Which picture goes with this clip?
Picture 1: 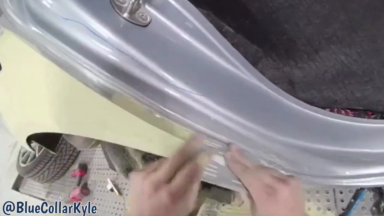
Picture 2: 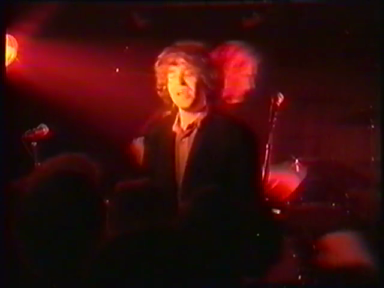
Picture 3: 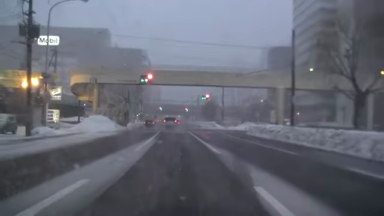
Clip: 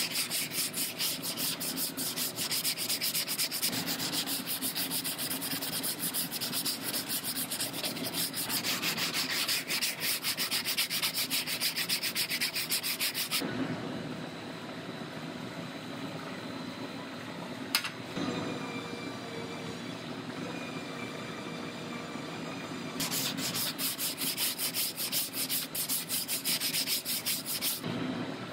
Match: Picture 1